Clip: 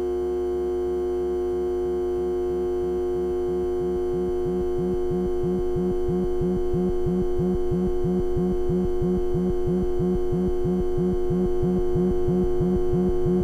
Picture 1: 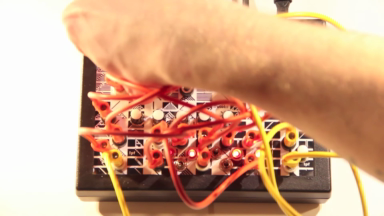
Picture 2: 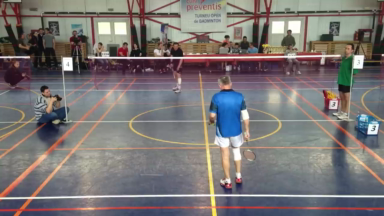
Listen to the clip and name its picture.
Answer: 1